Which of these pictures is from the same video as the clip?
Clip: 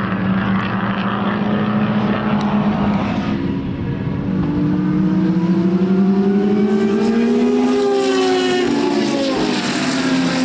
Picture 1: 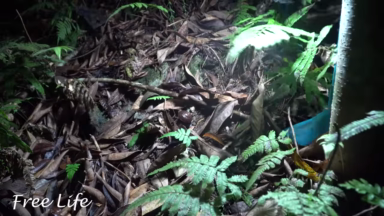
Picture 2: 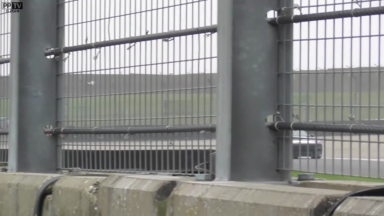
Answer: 2